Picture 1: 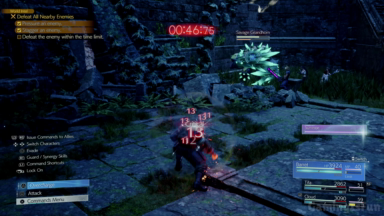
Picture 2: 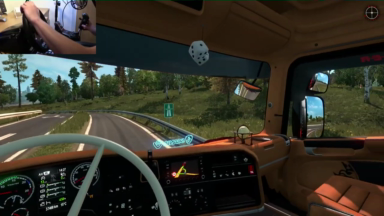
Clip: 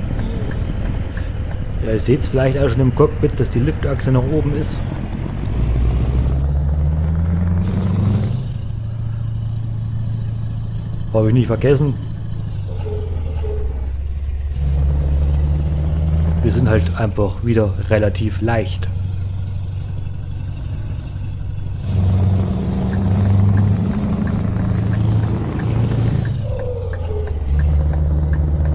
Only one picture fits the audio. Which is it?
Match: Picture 2